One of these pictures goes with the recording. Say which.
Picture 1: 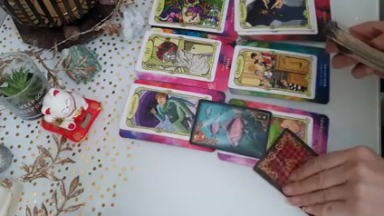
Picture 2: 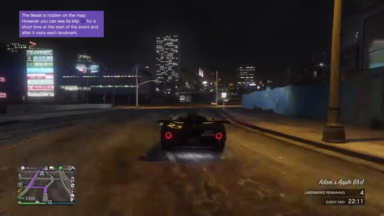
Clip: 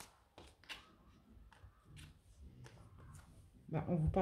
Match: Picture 1